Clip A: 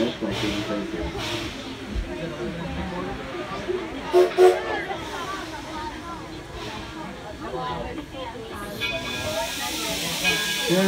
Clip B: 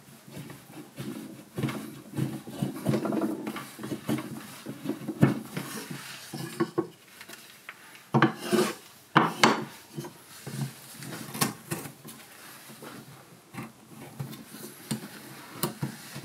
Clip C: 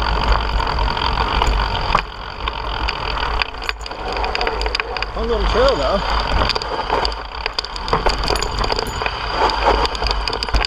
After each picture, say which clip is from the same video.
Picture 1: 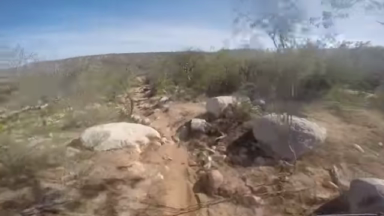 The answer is C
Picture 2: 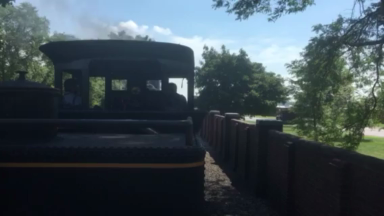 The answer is A